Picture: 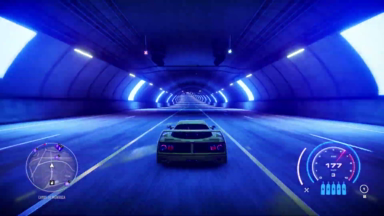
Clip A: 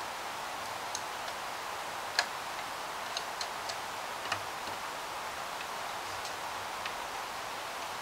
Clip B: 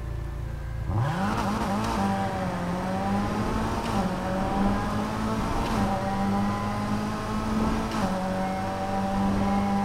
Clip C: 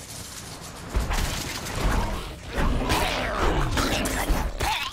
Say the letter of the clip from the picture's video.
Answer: B